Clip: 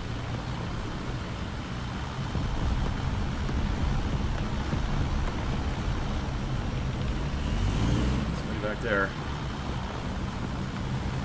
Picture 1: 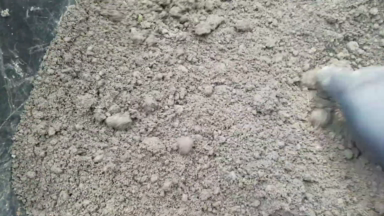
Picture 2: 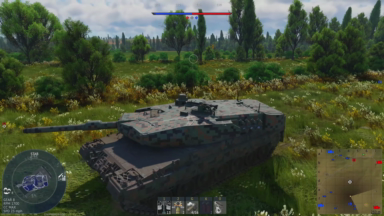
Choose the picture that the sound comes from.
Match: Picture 2